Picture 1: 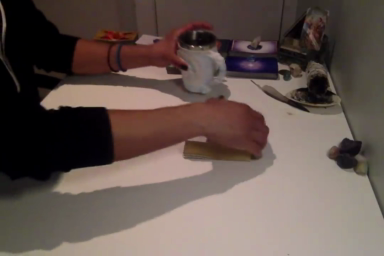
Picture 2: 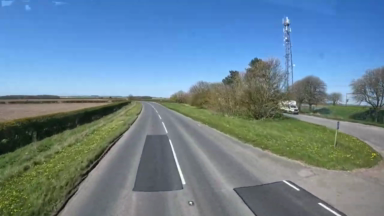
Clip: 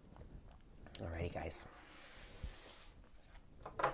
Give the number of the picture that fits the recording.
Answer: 1